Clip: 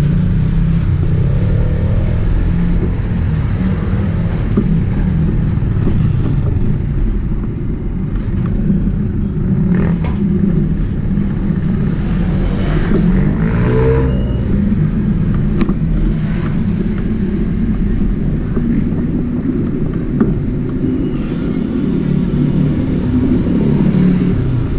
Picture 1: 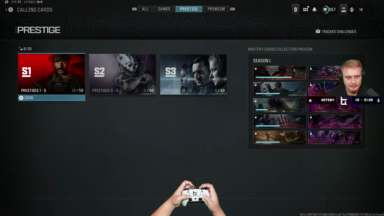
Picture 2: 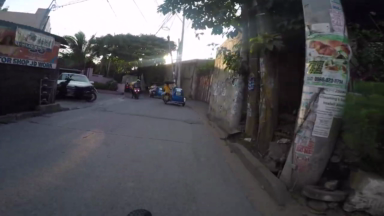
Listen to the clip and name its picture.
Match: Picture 2